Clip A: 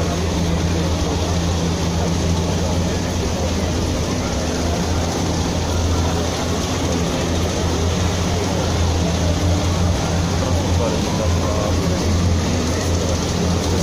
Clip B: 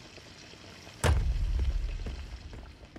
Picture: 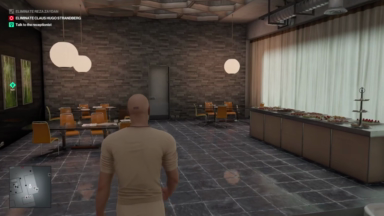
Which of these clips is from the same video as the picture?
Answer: B